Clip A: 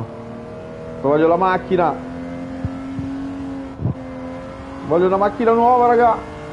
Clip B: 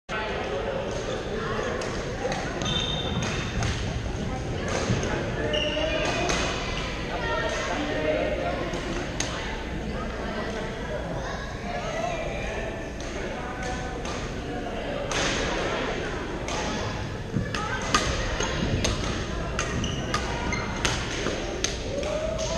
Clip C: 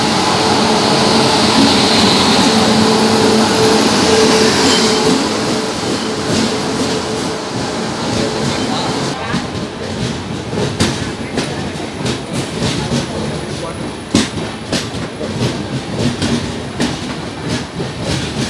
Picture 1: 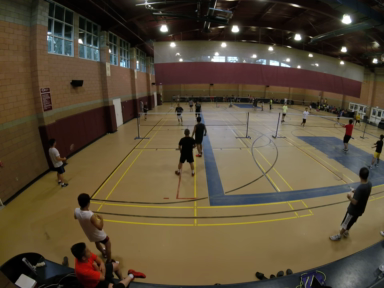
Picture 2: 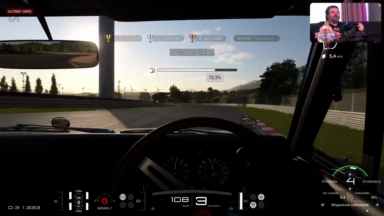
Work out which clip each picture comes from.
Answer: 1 B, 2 A